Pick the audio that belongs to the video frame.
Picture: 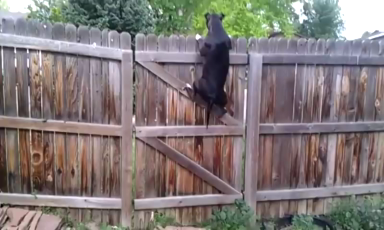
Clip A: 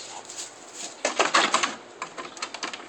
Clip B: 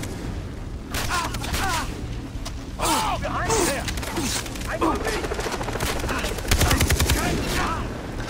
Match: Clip A